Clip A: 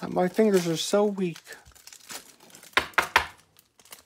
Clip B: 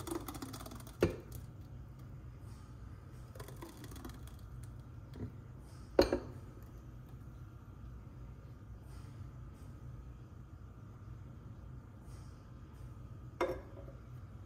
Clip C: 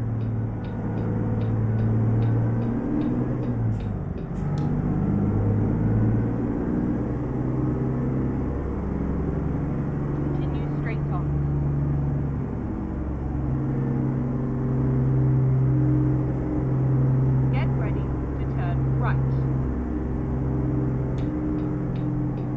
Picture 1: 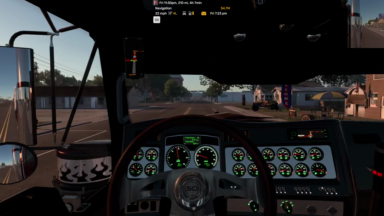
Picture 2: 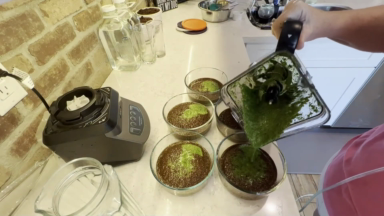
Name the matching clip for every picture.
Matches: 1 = C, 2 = B